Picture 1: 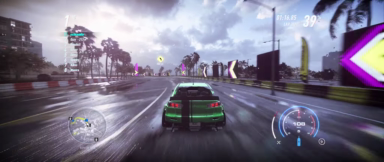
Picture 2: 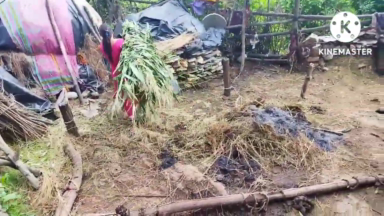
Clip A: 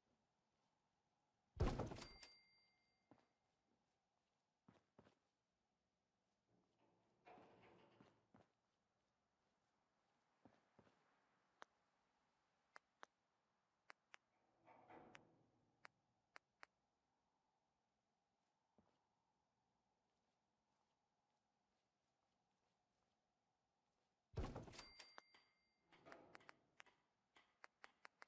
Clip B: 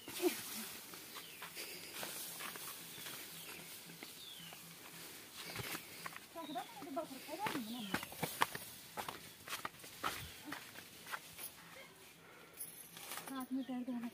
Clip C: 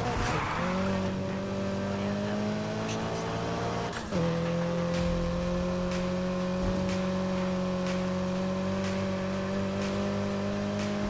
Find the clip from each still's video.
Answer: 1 C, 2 B